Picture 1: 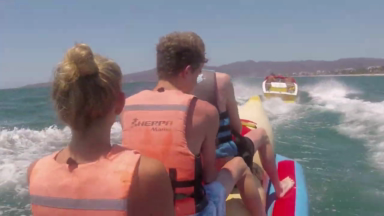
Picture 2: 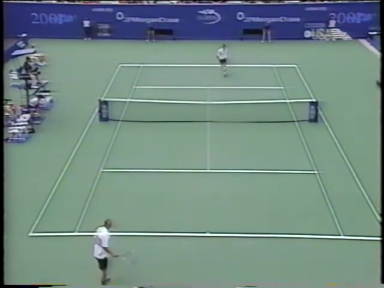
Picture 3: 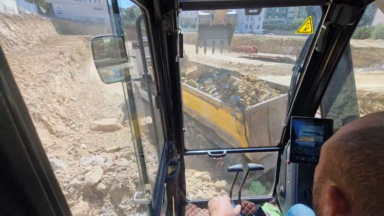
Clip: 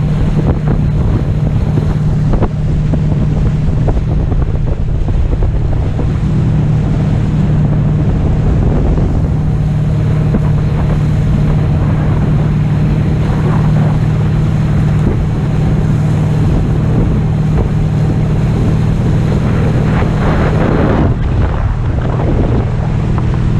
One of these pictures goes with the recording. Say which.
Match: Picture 1